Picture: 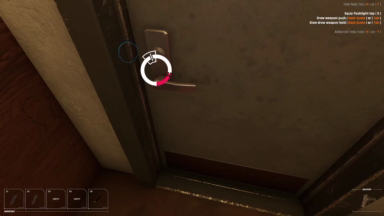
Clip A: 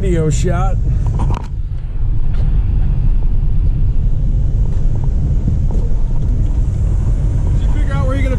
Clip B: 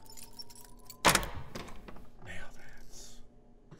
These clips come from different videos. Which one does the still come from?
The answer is B